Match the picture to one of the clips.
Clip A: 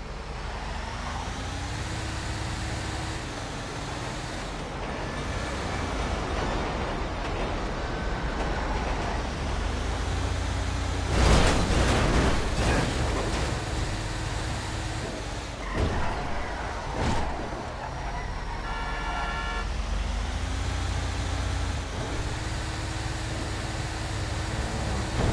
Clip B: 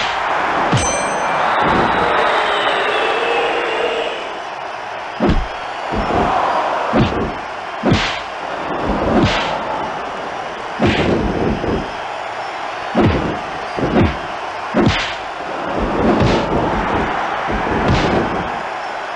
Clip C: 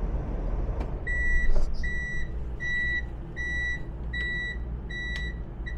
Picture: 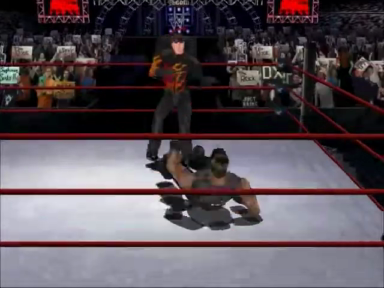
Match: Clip B